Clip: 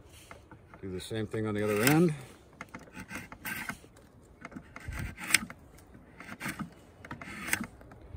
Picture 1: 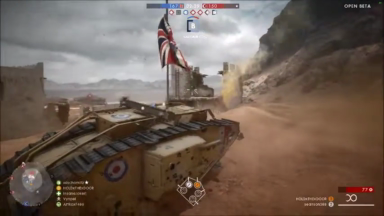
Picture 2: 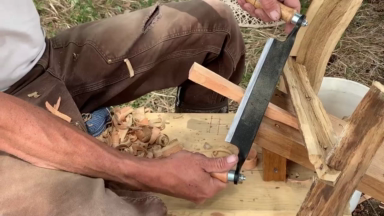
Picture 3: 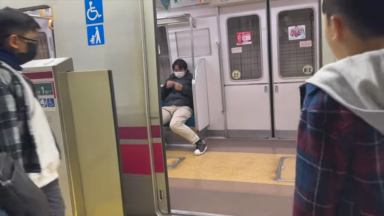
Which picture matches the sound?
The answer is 2